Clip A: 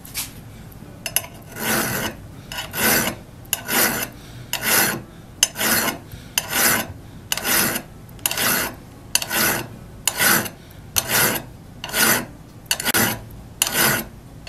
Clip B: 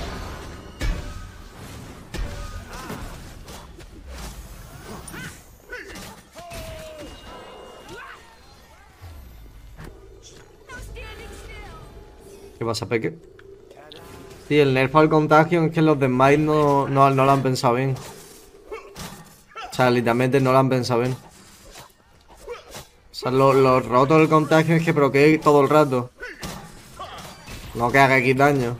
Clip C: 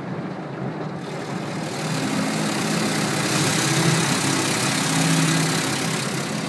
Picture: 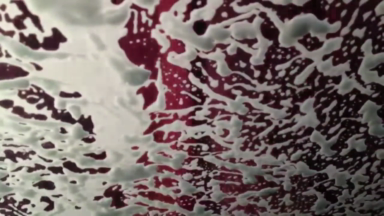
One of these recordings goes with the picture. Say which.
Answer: C